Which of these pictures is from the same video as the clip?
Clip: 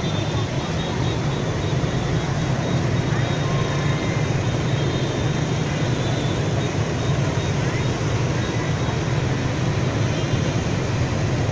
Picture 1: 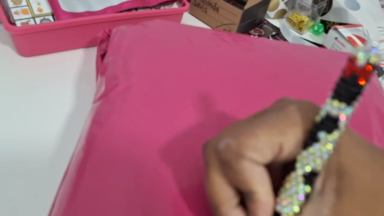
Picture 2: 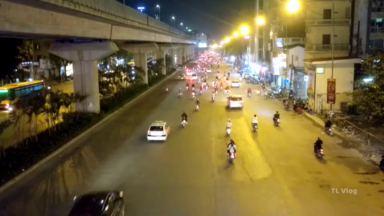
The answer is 2